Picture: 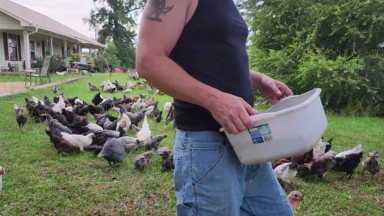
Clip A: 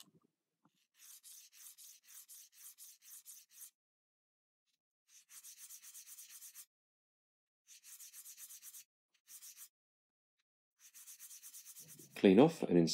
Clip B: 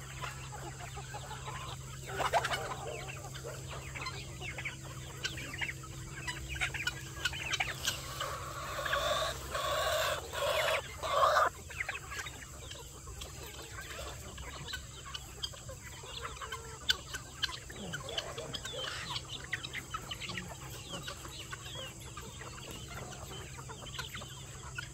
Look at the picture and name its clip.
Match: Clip B